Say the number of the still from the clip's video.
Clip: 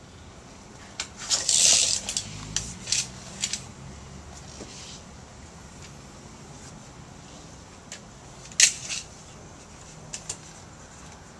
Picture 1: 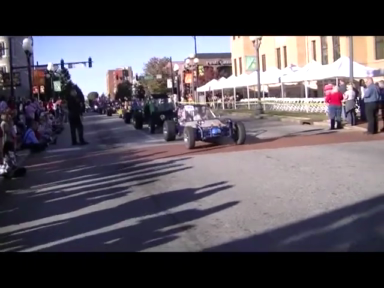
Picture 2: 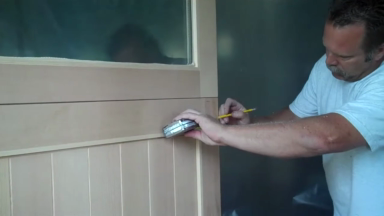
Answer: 2